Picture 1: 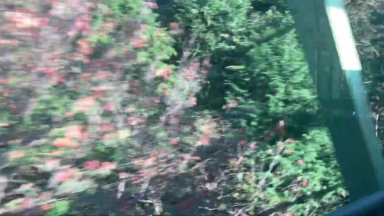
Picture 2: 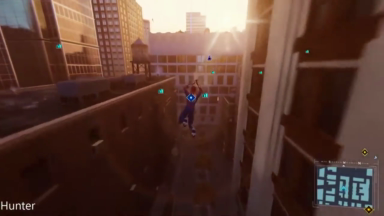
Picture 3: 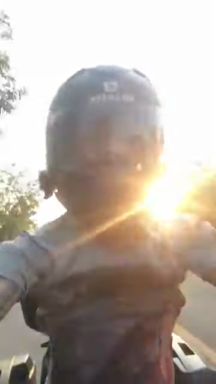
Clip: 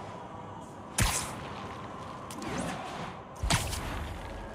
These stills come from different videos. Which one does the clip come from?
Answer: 2